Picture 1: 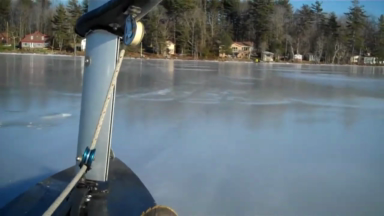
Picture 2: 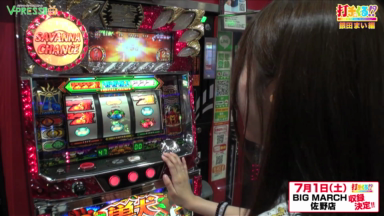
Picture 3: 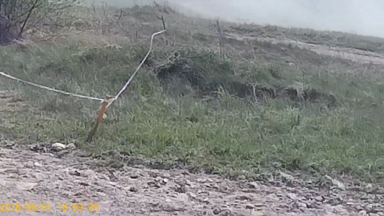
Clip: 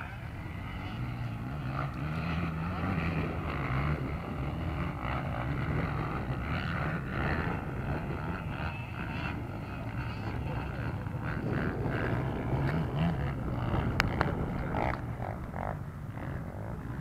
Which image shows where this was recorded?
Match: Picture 3